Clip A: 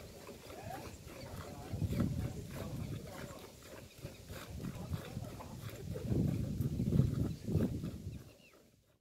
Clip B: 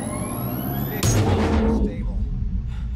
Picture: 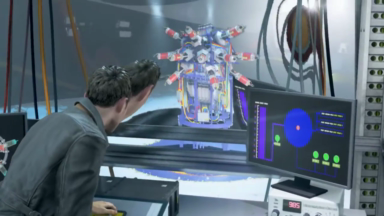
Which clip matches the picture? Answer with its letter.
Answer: B